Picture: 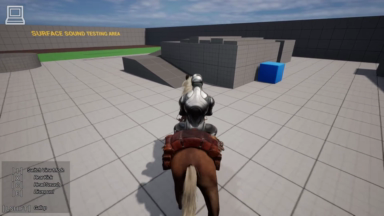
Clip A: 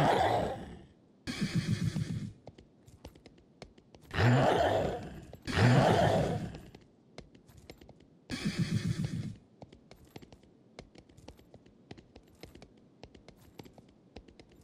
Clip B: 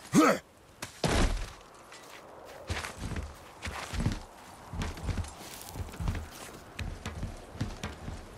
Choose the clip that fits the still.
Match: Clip A